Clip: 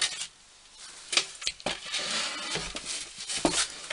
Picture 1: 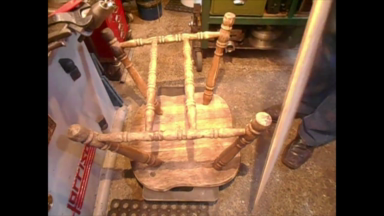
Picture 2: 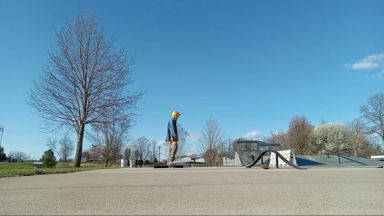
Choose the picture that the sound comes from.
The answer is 1